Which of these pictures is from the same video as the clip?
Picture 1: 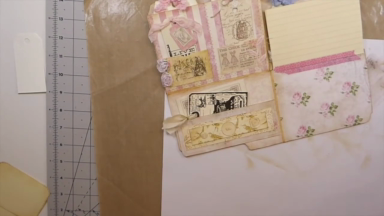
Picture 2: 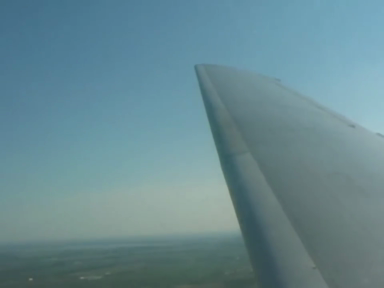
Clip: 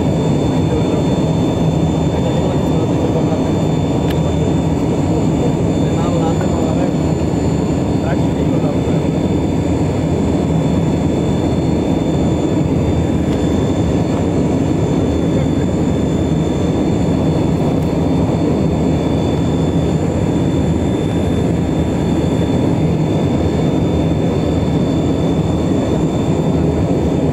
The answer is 2